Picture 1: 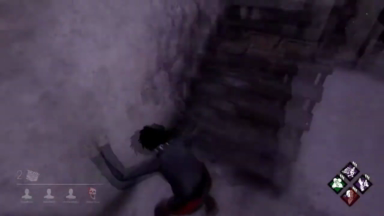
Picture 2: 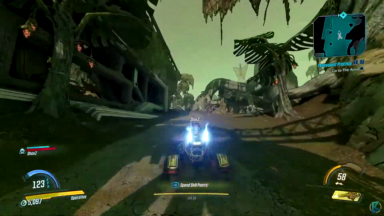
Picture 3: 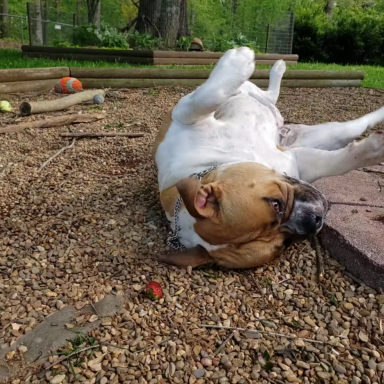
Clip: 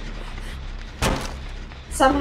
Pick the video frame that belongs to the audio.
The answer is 1